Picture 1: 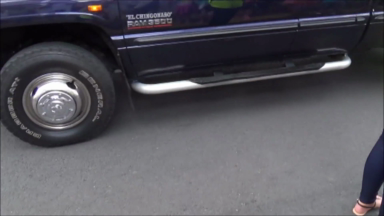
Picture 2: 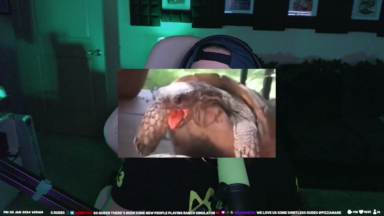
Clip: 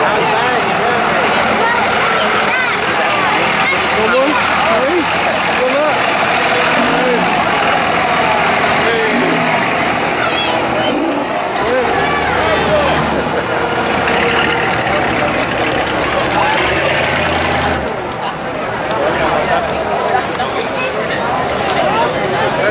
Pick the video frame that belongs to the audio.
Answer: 1